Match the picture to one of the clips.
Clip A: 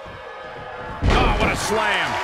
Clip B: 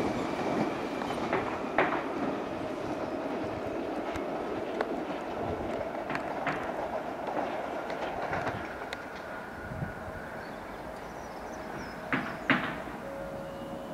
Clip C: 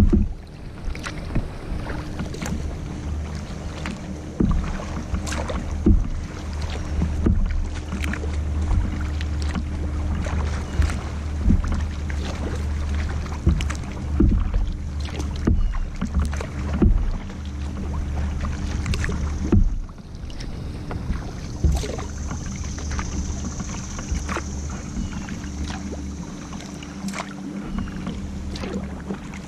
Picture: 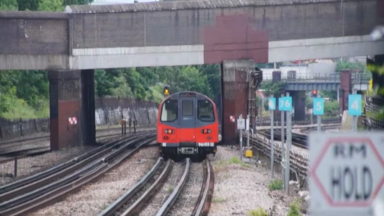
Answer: B